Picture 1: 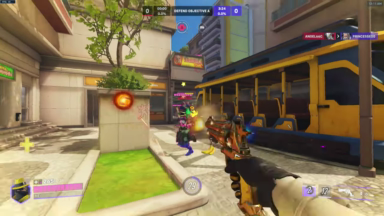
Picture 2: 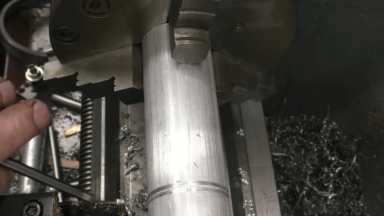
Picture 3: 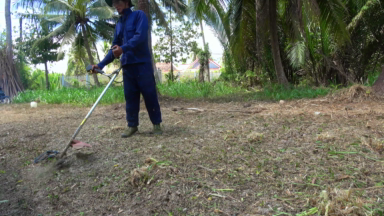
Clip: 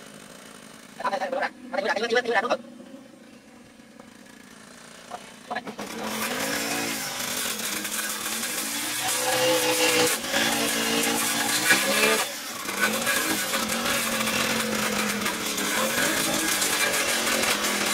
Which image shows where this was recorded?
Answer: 3